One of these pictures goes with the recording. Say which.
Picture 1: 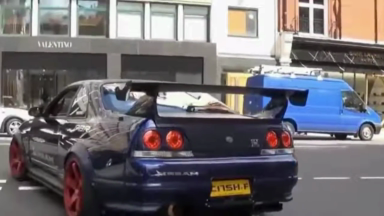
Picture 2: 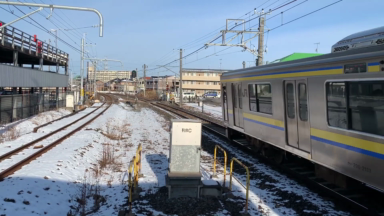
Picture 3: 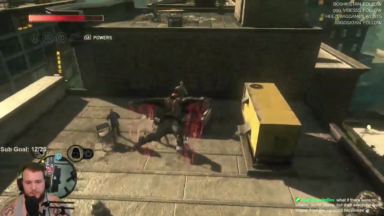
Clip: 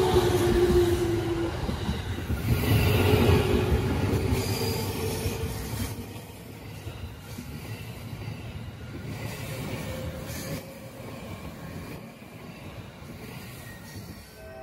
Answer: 2